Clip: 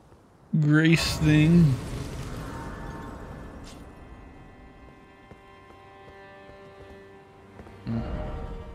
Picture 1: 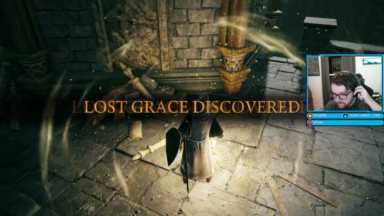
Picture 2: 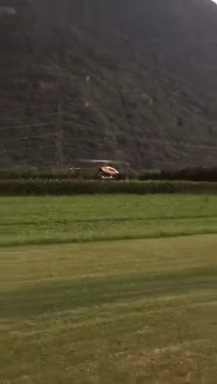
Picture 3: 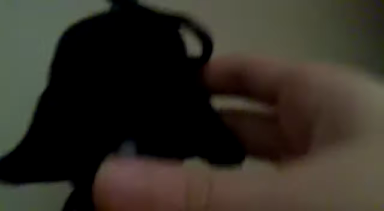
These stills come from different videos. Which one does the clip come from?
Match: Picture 1